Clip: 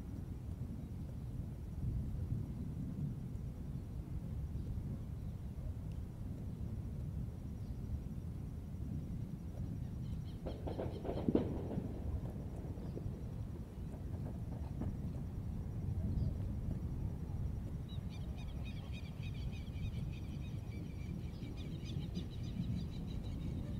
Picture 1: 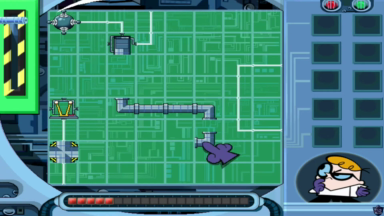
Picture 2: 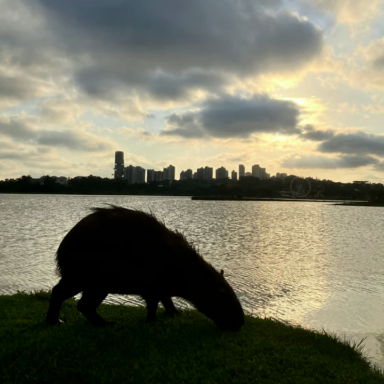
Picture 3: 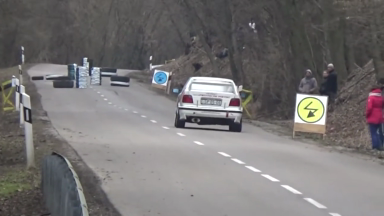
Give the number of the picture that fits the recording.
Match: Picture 2